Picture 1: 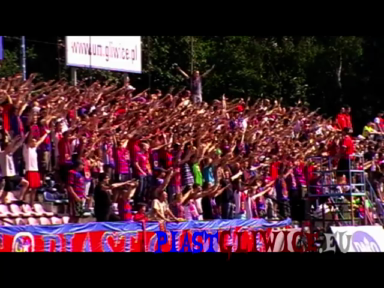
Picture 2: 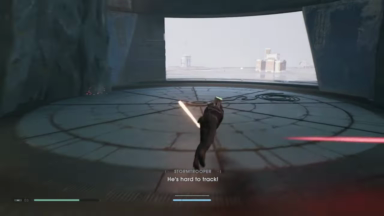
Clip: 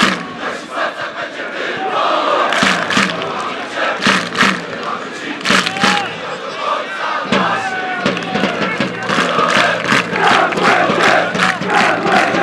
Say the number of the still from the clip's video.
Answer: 1